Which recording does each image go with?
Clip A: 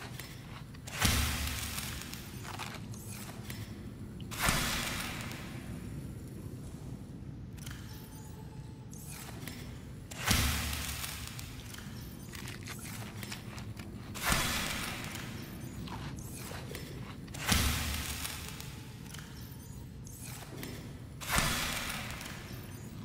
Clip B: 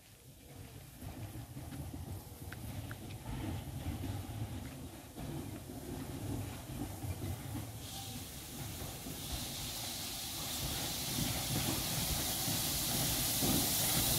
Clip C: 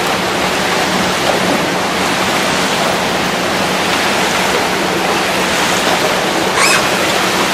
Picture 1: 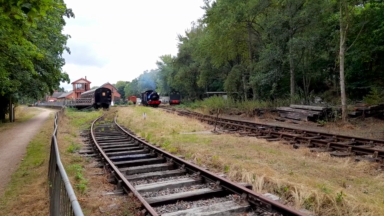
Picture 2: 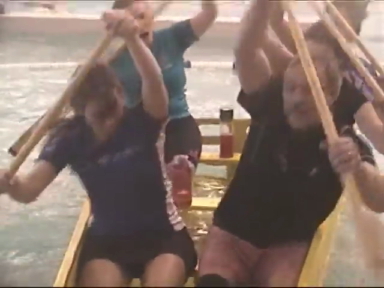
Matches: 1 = B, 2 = C